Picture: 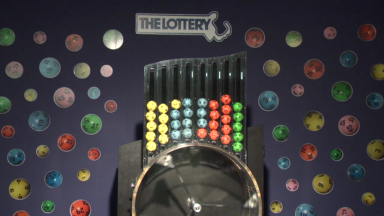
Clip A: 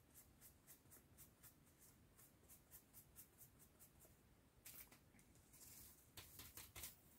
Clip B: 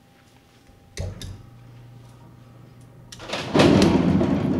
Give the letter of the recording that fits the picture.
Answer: B